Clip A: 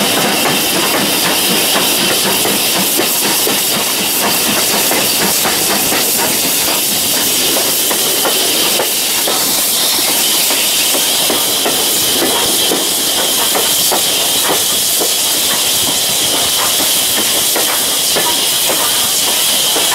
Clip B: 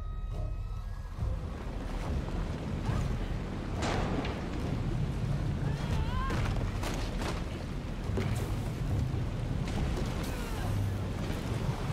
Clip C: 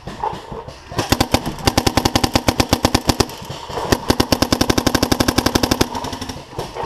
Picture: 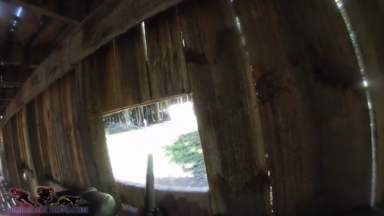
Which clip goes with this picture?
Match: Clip C